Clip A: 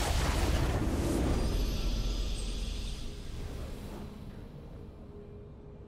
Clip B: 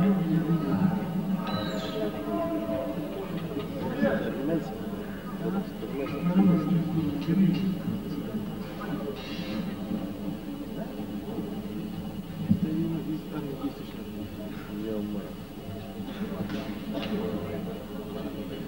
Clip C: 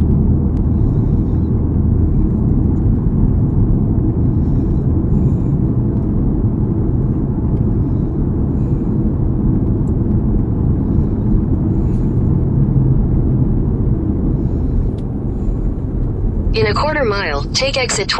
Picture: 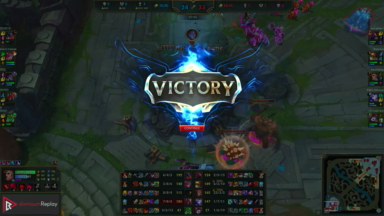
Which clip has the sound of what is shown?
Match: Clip A